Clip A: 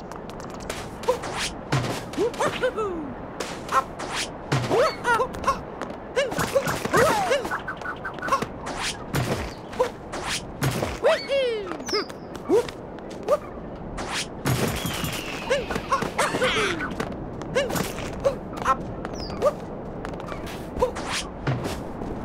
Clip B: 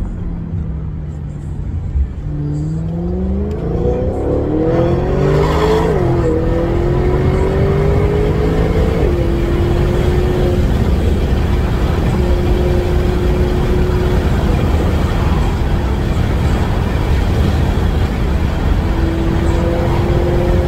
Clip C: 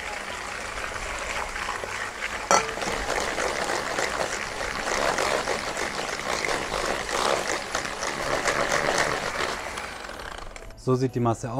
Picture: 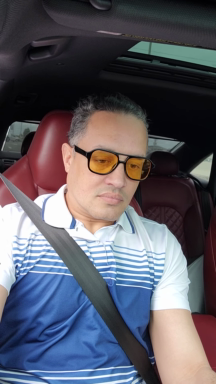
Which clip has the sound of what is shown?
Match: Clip B